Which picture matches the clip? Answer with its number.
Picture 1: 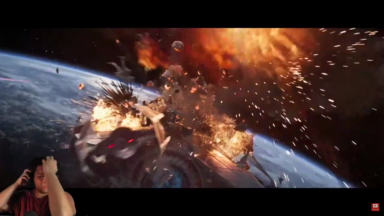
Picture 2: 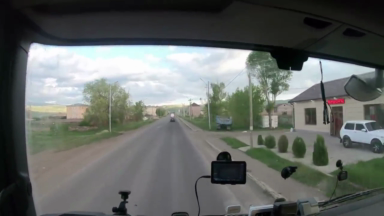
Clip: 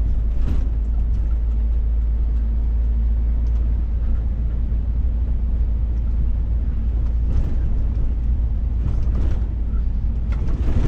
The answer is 2